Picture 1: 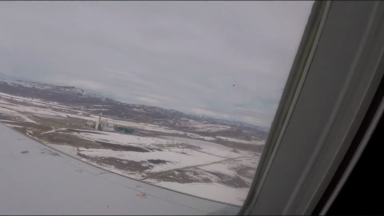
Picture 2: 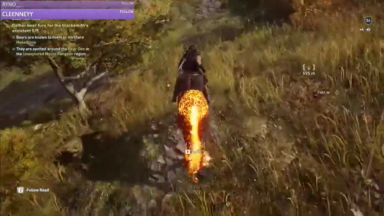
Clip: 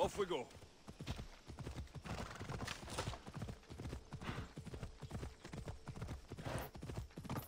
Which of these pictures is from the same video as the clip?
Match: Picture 2